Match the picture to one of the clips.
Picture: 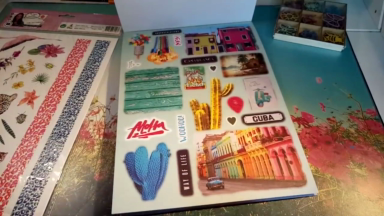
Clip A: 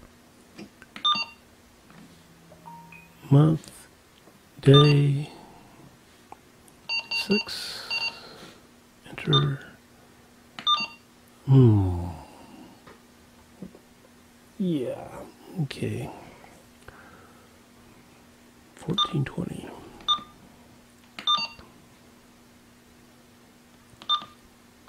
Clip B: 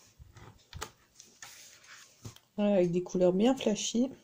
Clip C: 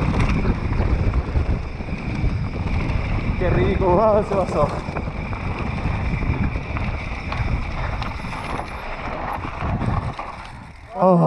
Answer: B